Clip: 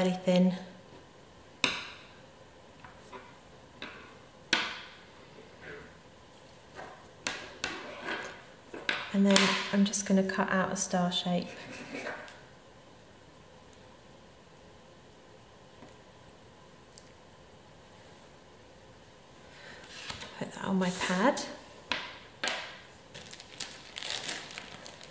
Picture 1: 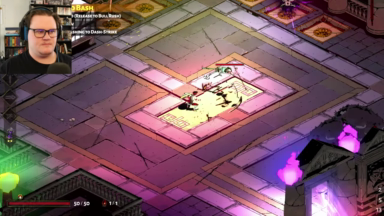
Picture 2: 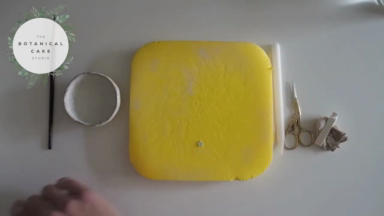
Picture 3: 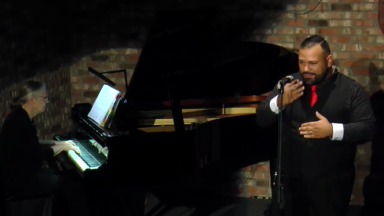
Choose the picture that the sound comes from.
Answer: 2